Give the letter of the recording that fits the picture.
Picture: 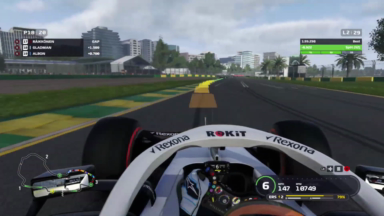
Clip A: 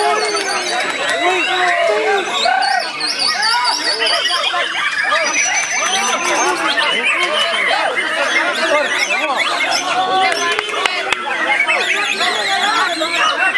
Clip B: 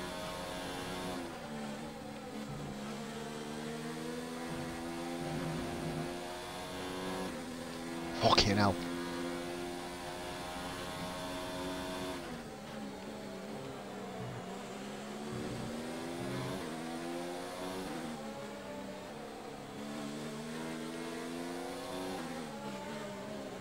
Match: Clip B